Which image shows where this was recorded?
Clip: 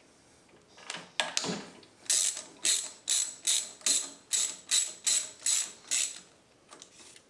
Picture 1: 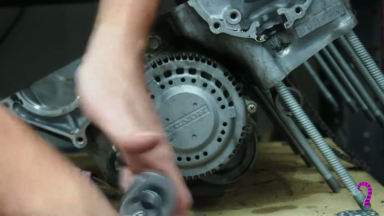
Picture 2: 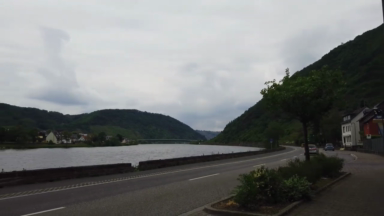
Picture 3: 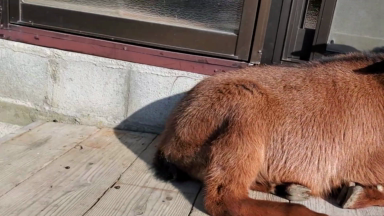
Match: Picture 1